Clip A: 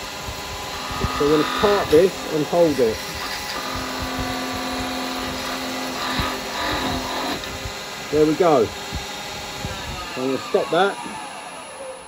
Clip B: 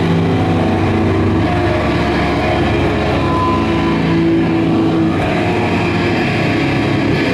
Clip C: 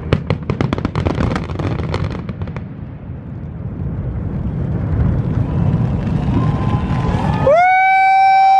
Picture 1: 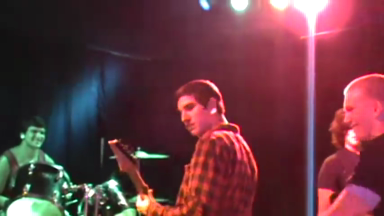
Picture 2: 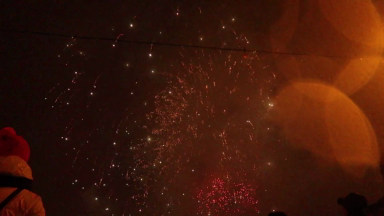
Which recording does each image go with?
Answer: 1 B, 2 C